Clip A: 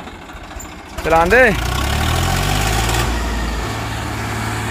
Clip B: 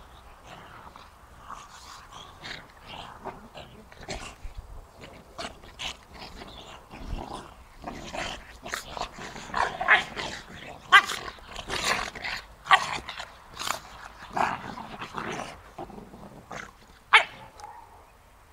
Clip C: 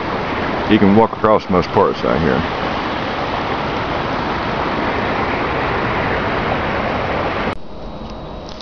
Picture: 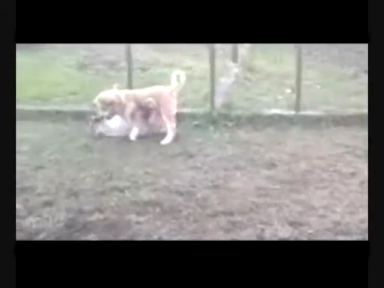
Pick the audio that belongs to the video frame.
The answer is B